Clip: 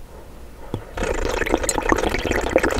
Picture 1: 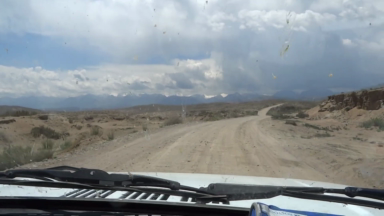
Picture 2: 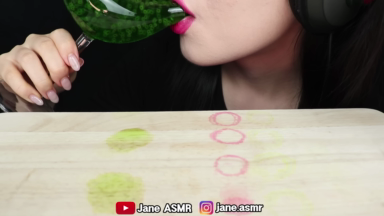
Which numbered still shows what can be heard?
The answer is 2